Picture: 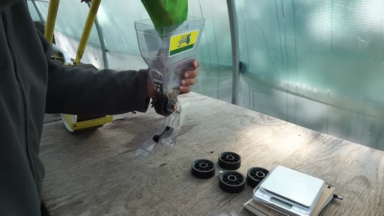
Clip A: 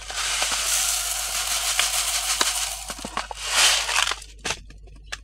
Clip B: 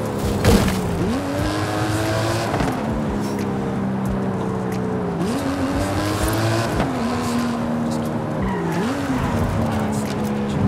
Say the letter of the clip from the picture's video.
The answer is A